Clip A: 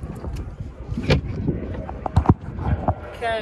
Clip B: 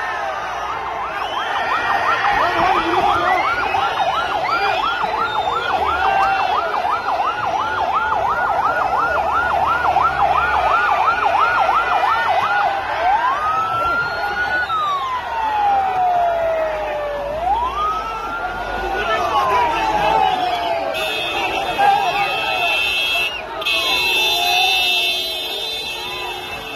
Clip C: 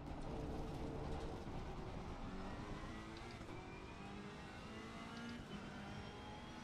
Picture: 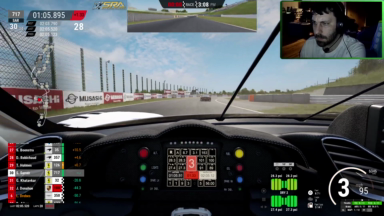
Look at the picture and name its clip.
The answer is C